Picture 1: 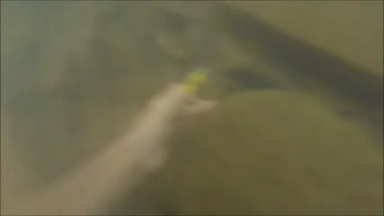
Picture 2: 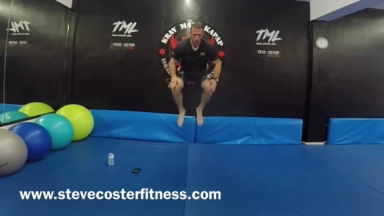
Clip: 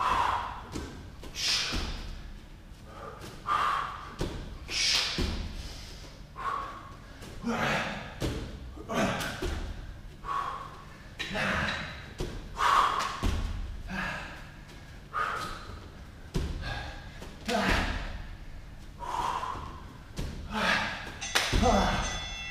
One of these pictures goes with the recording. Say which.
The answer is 2